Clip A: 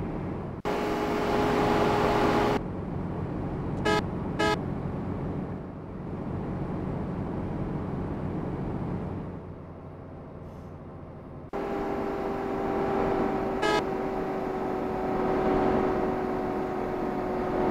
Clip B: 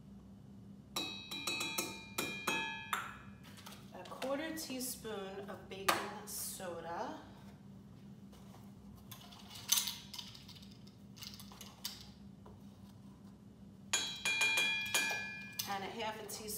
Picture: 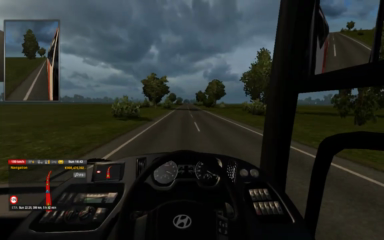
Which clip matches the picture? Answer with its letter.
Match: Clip A